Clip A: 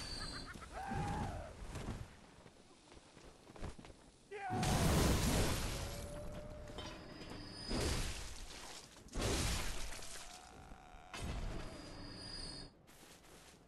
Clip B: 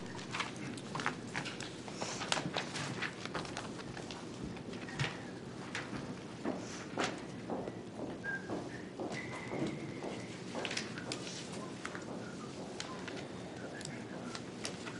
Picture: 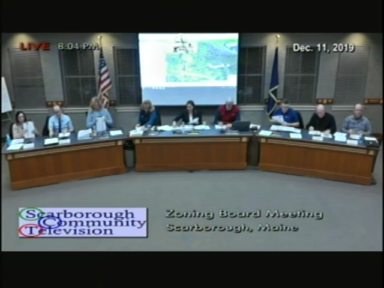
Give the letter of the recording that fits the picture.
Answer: B